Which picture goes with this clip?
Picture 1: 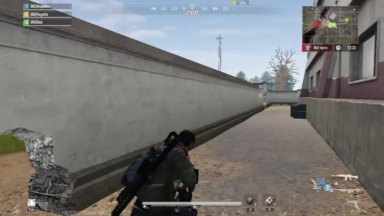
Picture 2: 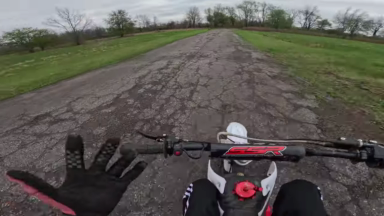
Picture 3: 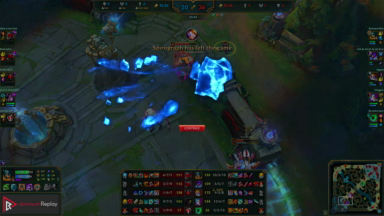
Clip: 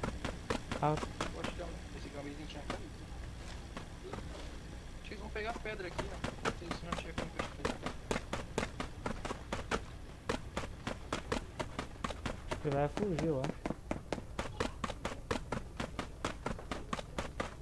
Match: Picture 1